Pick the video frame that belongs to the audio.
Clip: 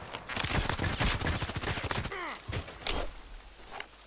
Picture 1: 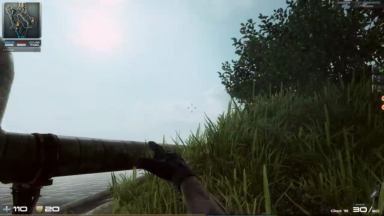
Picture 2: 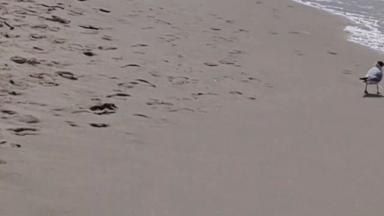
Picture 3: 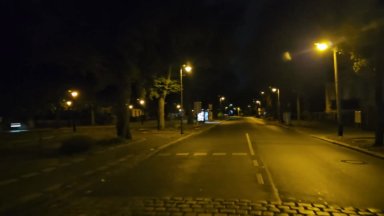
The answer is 1